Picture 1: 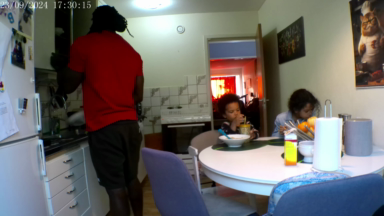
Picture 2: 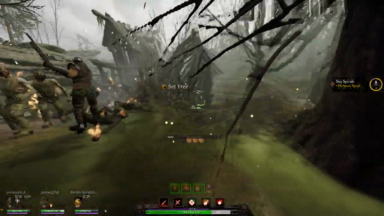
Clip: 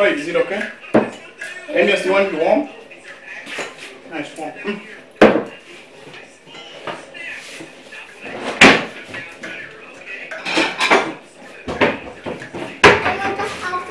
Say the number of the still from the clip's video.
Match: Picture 1